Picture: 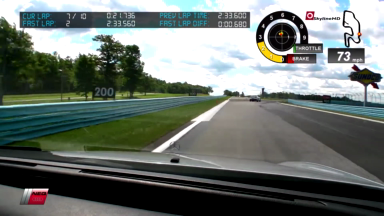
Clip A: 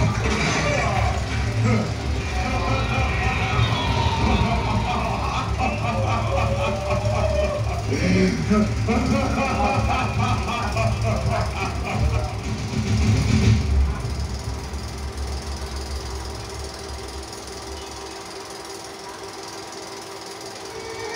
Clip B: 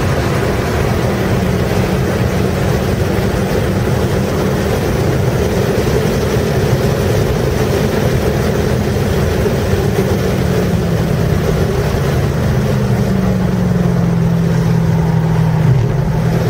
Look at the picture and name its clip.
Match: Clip B